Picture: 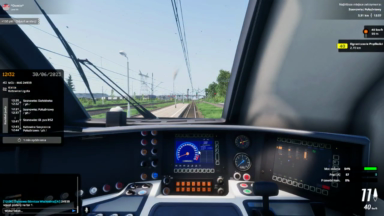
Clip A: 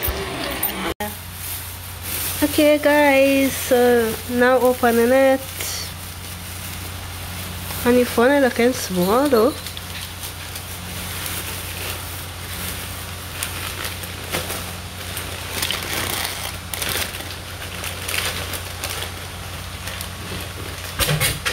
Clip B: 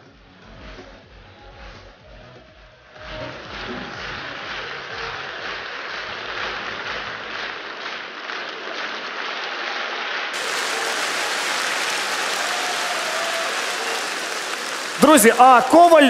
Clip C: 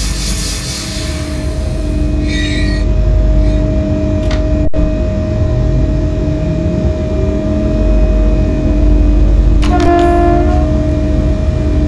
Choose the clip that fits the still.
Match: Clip C